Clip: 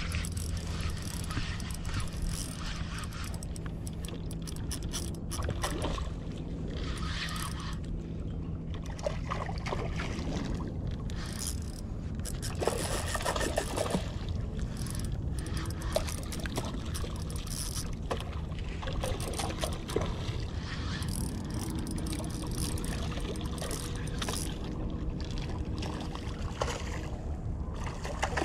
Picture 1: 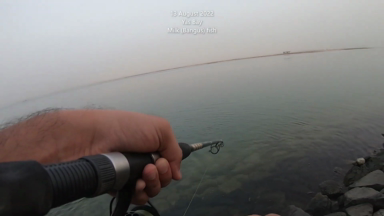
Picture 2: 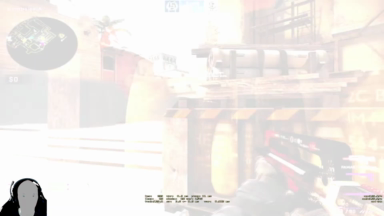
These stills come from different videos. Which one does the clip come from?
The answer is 1